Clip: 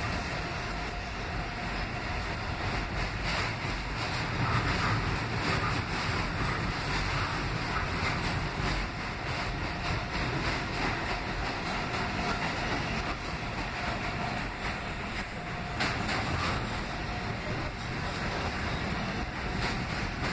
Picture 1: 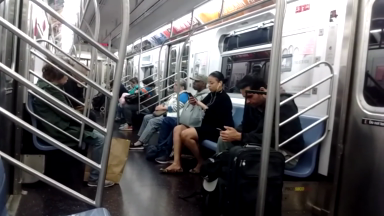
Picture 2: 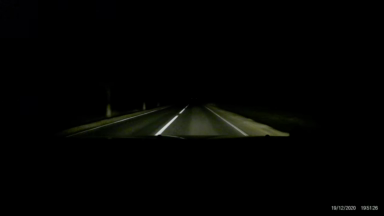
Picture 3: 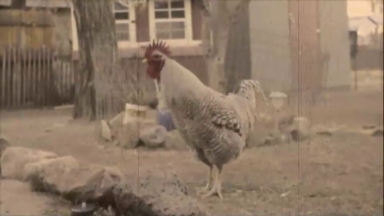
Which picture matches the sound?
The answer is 1